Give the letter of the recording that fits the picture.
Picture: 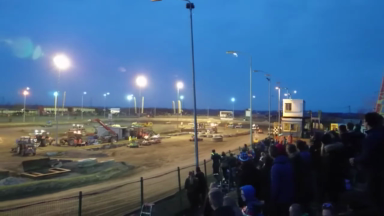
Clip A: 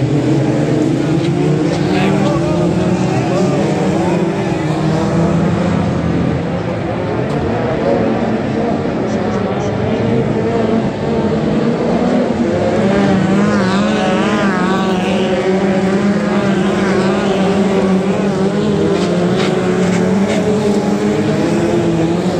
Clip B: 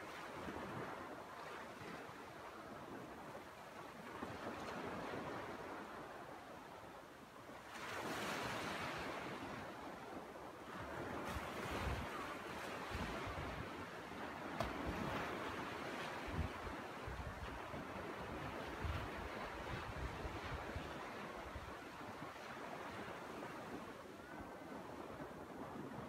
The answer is A